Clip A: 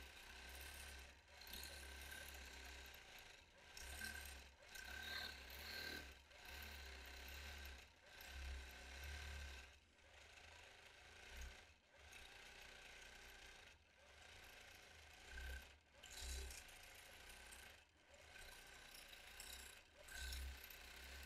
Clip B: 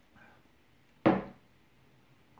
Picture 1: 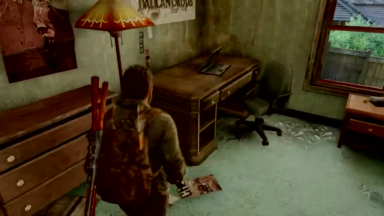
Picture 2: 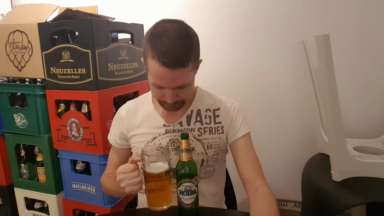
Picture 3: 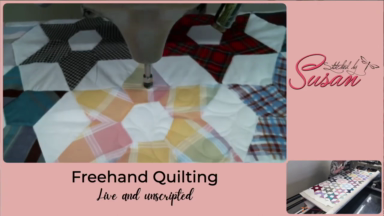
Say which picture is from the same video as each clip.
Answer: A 3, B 2